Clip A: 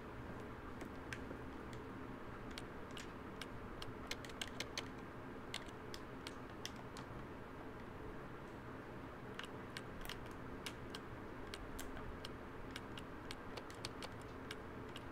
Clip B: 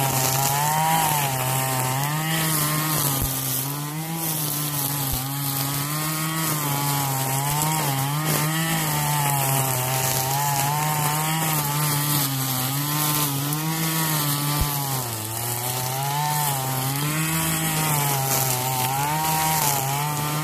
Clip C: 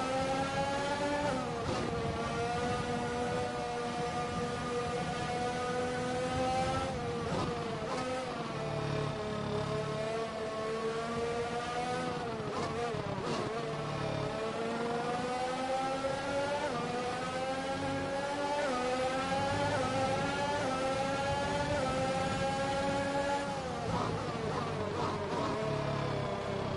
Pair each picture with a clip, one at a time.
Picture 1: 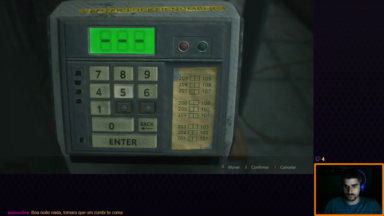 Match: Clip A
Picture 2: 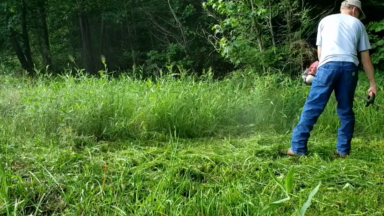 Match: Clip B